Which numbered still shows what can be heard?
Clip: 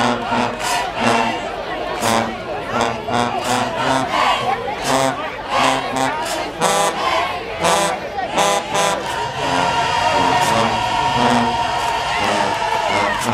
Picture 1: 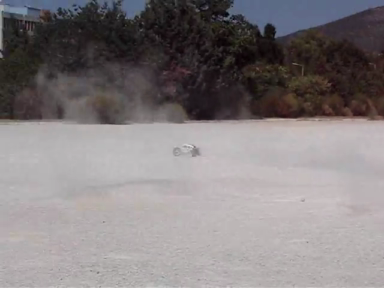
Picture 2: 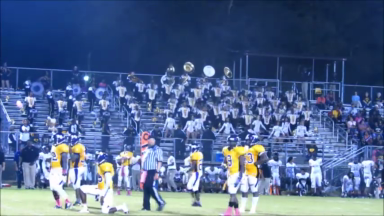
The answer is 2